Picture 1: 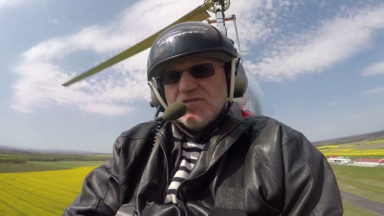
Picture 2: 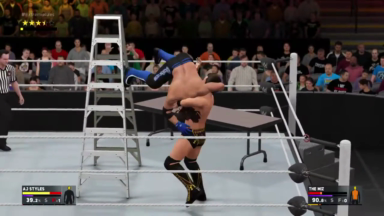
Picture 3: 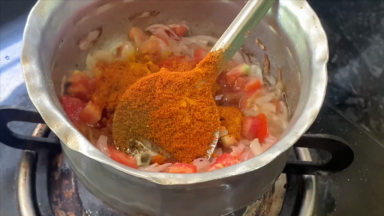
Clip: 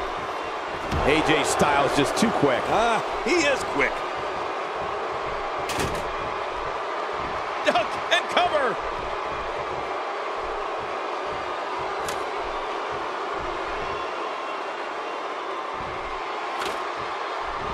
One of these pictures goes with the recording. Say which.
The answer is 2